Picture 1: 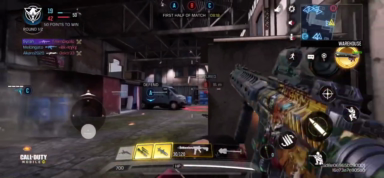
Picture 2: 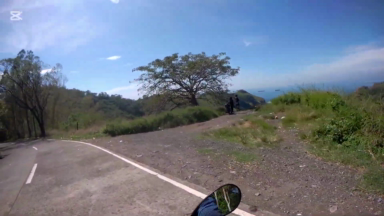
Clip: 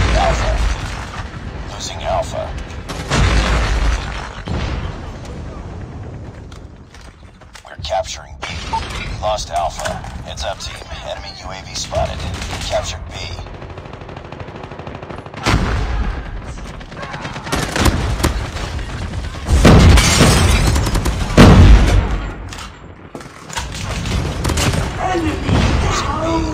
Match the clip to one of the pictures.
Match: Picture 1